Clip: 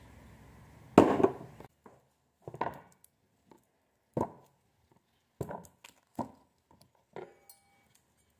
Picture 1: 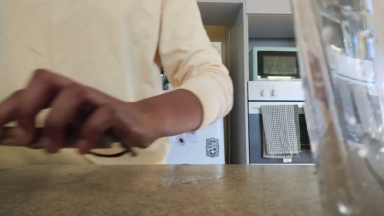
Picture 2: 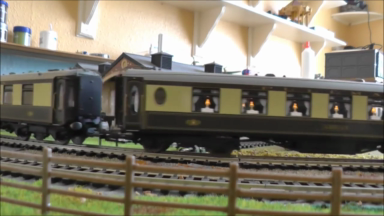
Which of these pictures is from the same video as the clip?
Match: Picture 1